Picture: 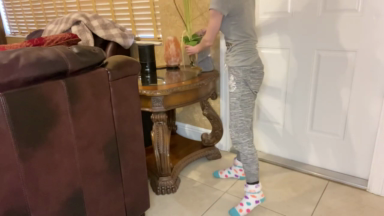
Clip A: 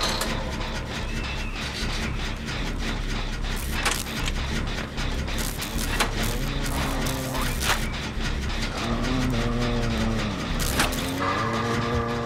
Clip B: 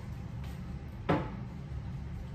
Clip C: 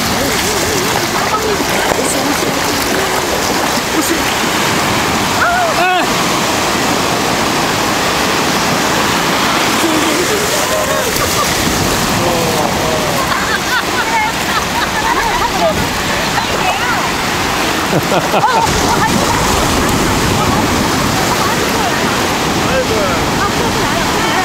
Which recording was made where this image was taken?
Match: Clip B